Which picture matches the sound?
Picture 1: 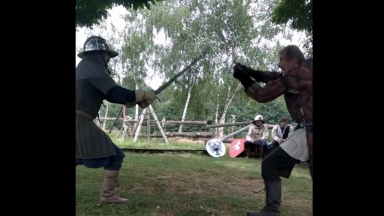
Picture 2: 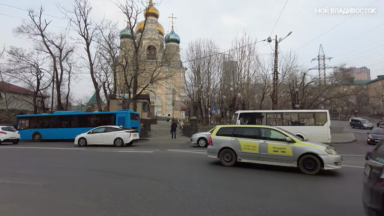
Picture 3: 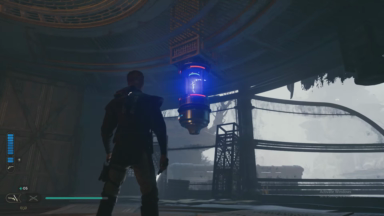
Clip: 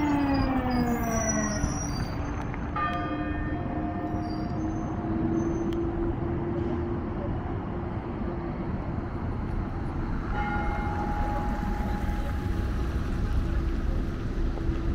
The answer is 2